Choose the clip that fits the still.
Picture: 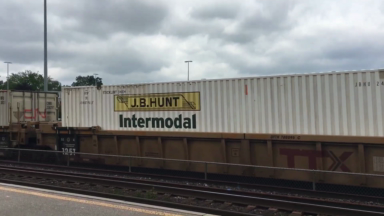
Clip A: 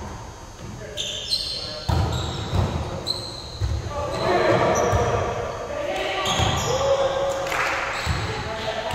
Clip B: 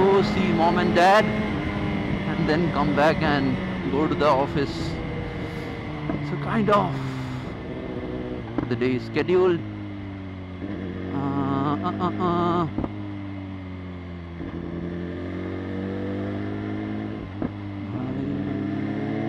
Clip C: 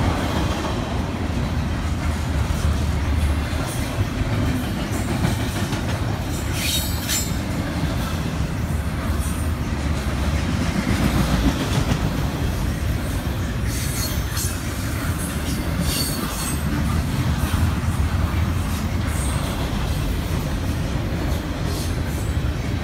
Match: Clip C